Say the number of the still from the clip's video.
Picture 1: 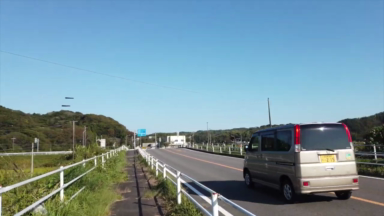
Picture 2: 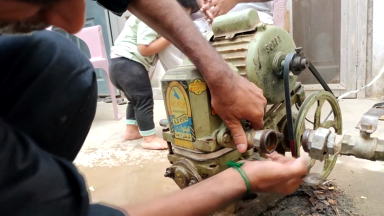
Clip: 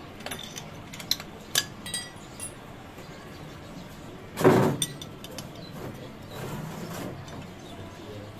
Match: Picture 2